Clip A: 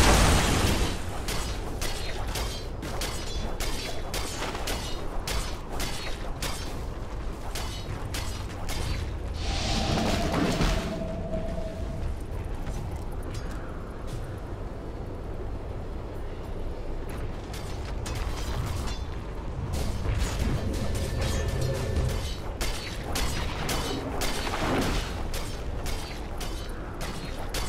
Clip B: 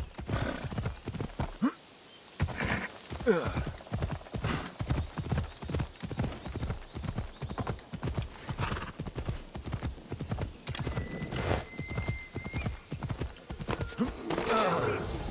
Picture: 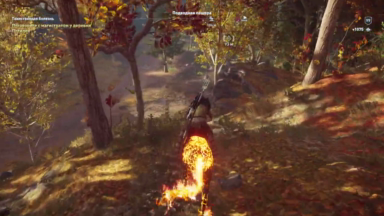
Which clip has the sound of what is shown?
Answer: B